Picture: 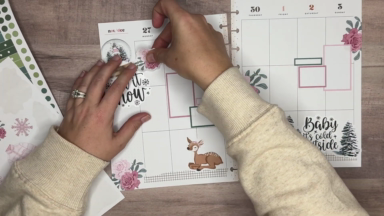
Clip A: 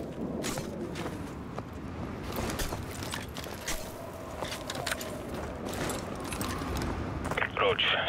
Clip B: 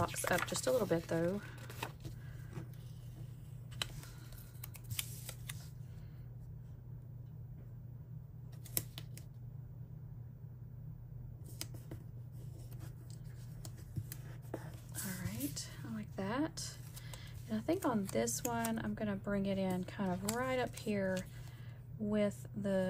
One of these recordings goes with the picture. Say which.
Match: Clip B